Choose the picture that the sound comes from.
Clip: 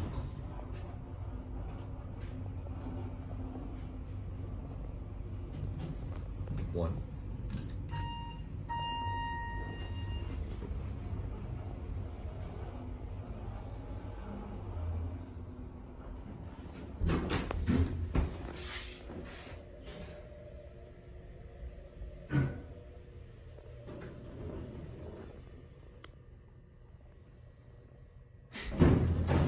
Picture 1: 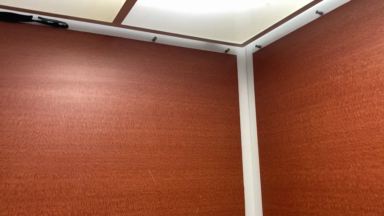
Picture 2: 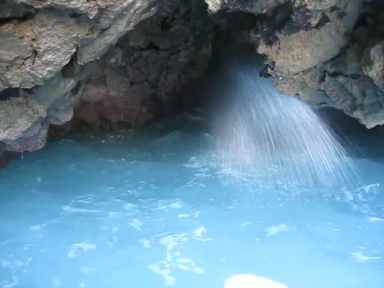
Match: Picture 1